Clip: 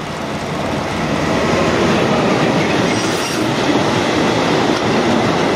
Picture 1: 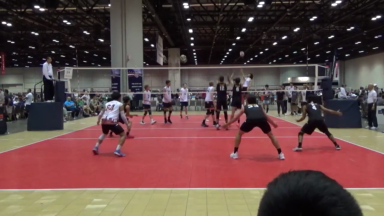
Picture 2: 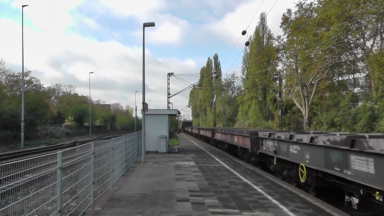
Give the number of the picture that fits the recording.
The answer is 2